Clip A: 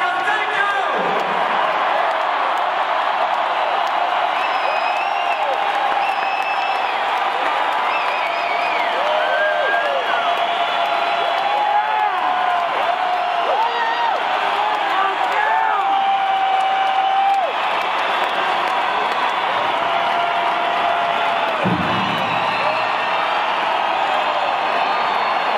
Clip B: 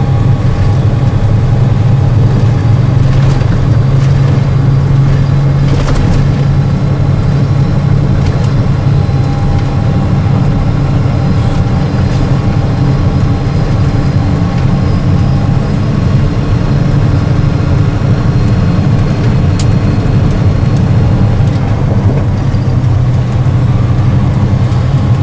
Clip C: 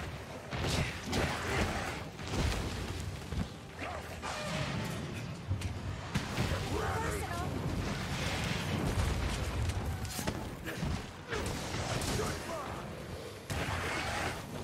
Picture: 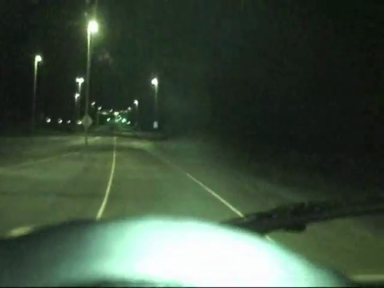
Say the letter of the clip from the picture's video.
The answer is B